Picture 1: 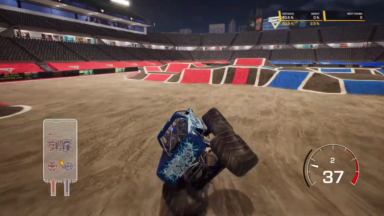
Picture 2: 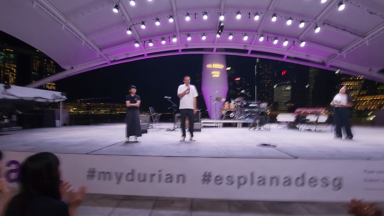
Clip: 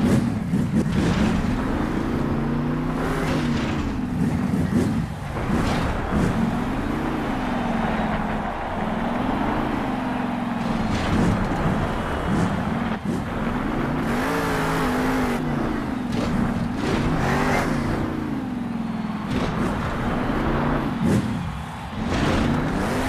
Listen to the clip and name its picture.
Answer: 1